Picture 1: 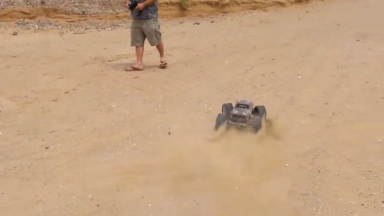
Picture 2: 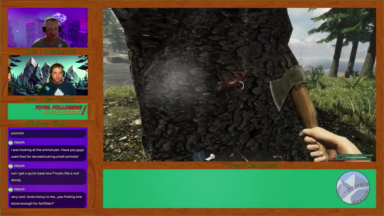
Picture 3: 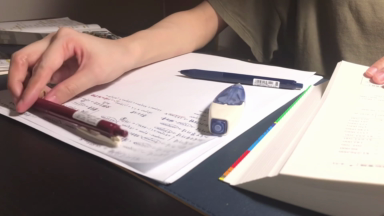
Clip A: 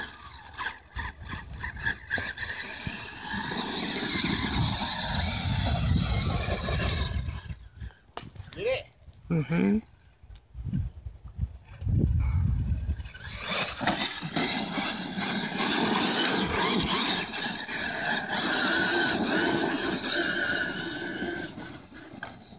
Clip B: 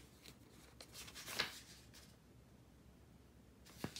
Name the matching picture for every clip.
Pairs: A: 1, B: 3